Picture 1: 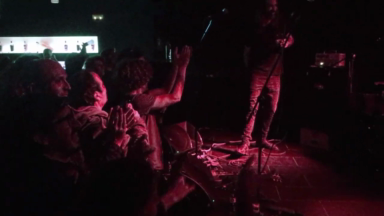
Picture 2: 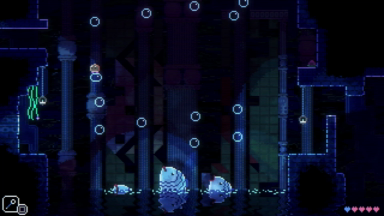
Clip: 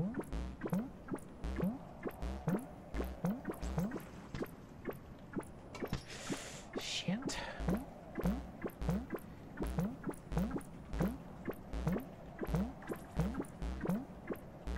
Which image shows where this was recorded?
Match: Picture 2